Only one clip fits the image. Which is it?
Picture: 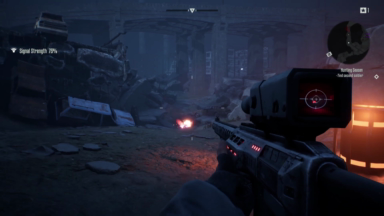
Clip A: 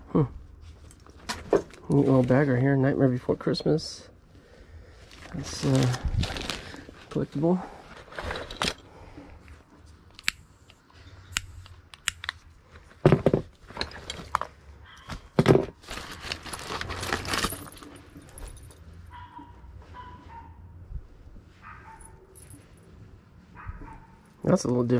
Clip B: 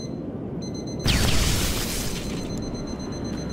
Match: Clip B